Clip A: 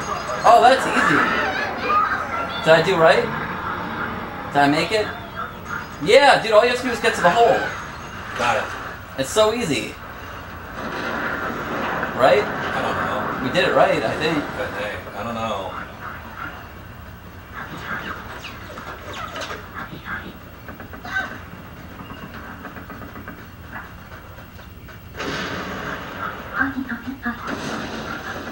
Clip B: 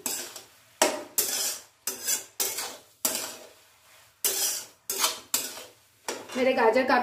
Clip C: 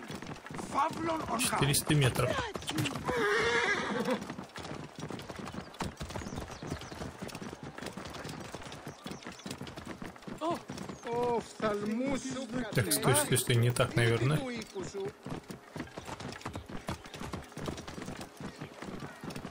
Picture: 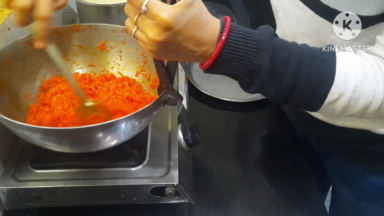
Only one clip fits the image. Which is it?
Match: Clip B